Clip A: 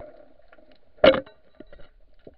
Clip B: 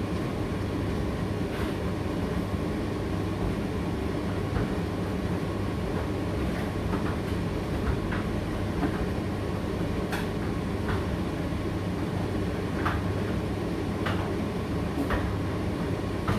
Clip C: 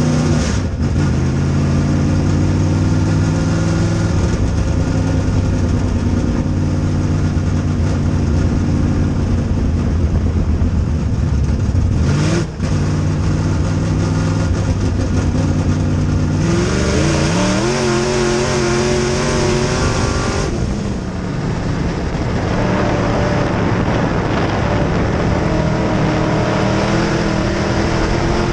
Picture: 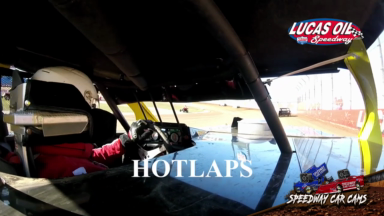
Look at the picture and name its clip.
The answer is C